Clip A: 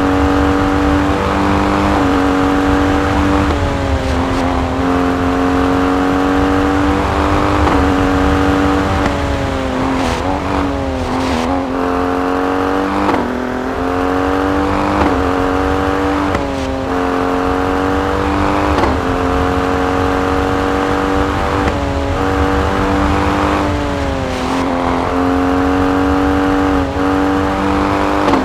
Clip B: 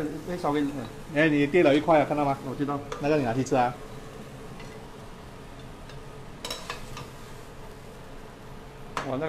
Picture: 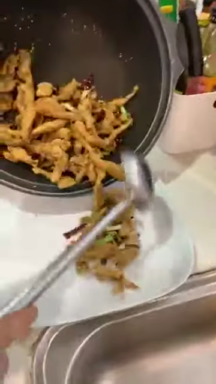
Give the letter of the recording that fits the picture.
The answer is B